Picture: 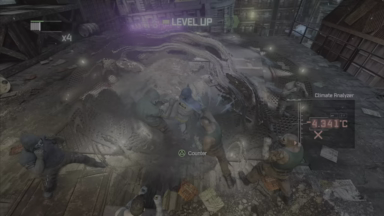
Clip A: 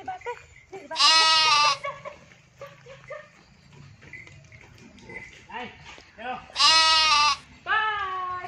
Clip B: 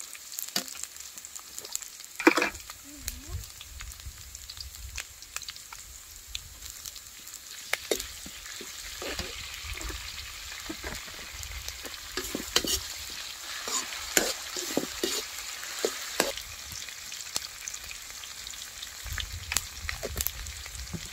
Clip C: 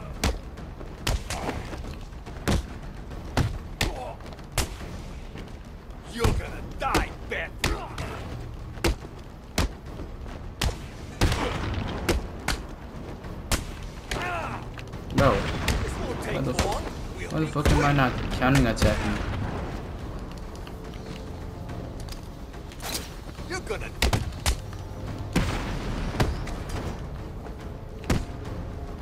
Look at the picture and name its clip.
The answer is C